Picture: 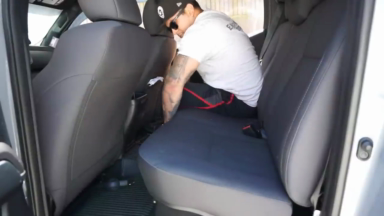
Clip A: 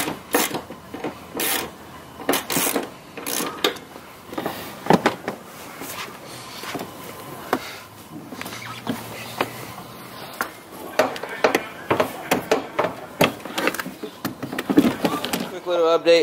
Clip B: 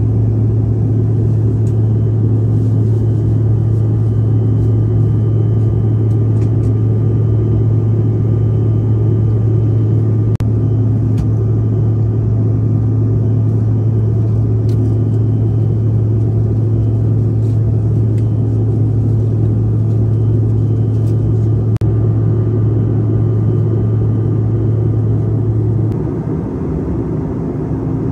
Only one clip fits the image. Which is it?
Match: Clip A